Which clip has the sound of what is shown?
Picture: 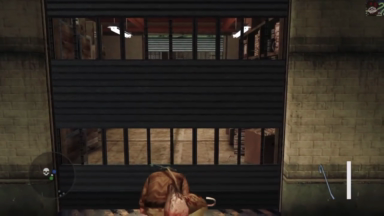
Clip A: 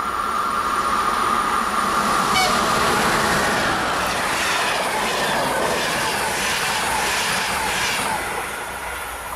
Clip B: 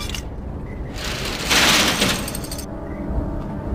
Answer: B